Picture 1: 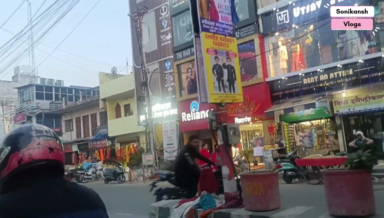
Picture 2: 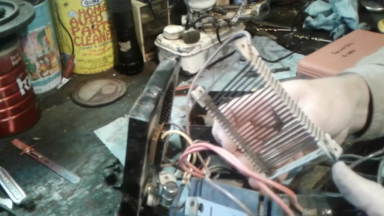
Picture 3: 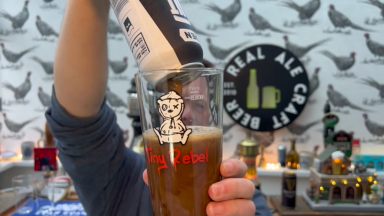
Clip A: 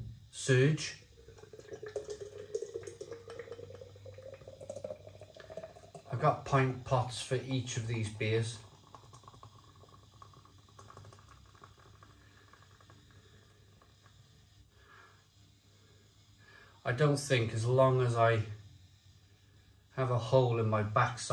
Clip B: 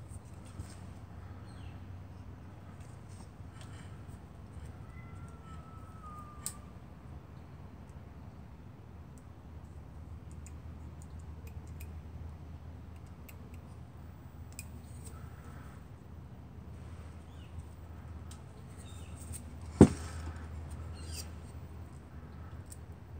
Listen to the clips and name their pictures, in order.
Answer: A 3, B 2